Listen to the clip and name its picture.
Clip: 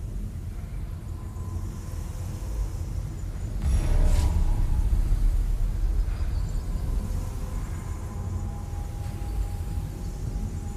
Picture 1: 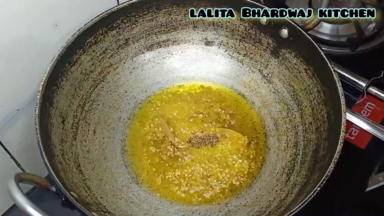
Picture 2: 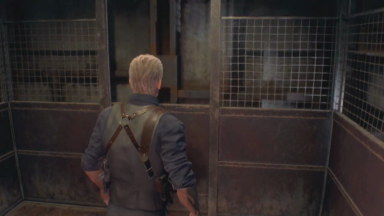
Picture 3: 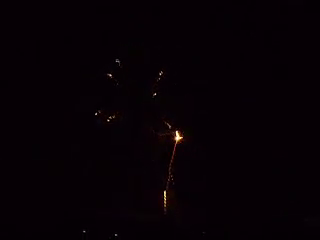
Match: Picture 2